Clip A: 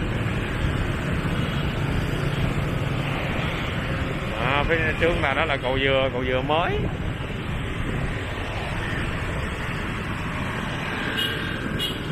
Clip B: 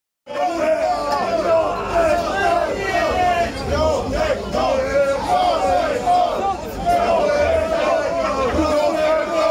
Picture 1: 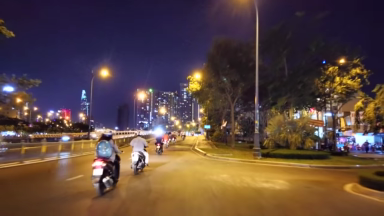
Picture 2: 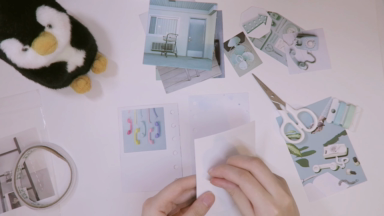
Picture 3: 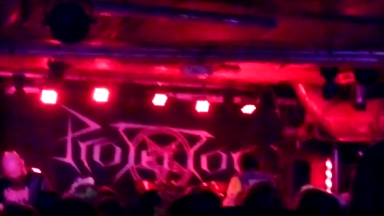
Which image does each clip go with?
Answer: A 1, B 3